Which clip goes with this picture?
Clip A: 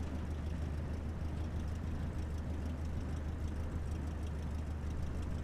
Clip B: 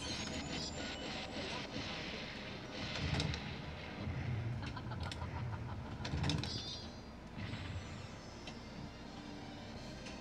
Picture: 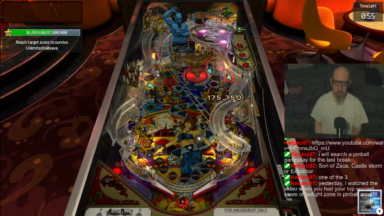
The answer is B